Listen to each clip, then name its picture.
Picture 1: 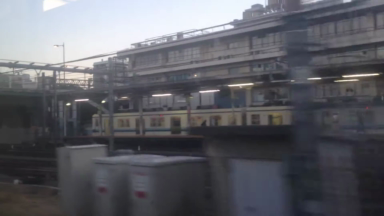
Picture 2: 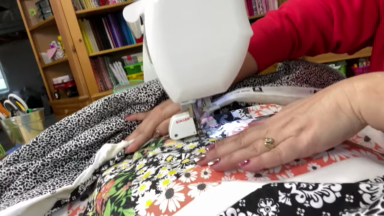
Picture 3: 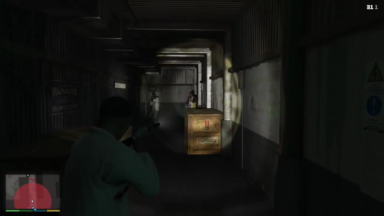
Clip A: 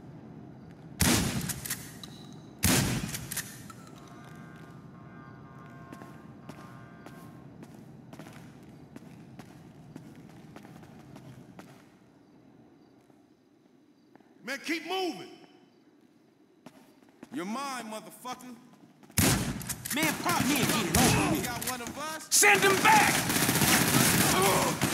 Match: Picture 3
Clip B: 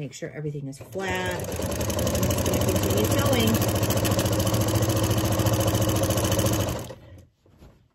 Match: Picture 2